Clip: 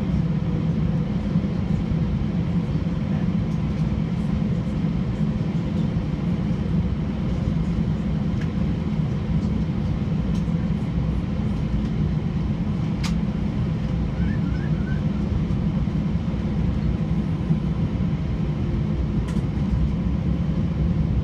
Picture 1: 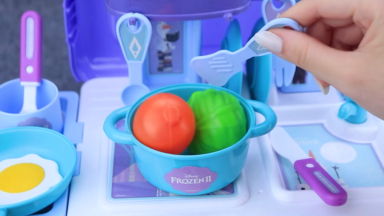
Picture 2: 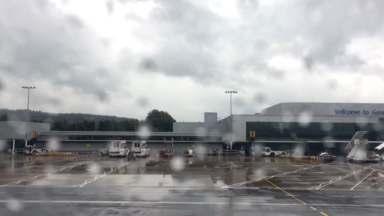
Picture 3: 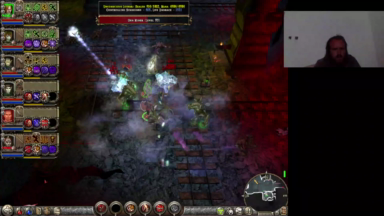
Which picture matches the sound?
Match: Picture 2